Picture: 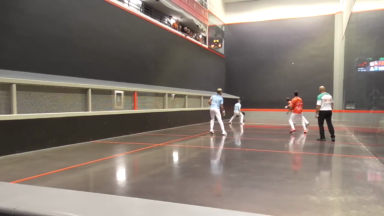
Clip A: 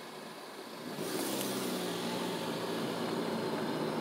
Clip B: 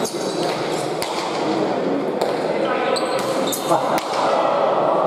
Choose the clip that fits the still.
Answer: B